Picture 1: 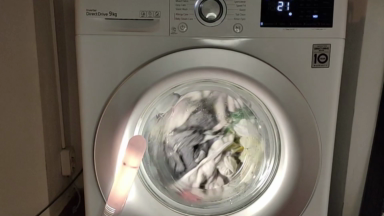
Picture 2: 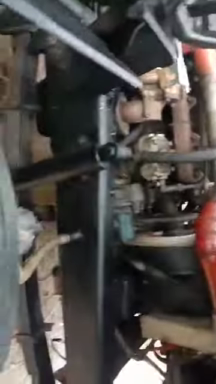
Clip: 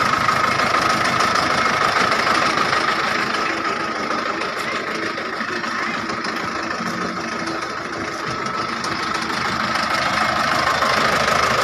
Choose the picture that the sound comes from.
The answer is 2